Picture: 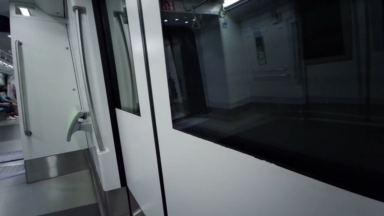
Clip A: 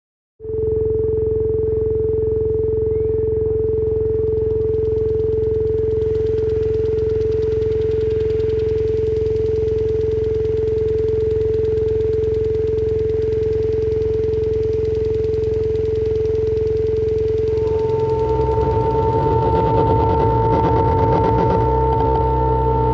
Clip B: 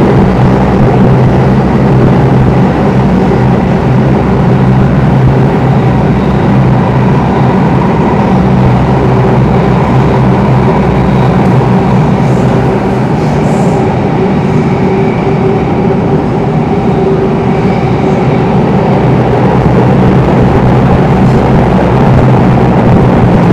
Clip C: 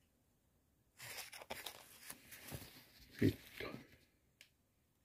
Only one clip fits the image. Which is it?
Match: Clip B